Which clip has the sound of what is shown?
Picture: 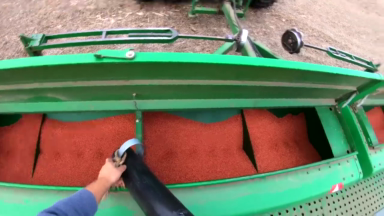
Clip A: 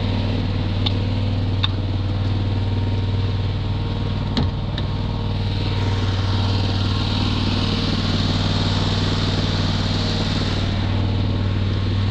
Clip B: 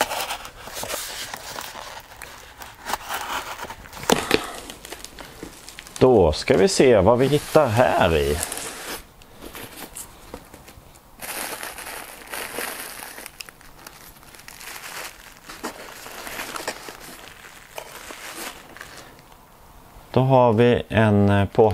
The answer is A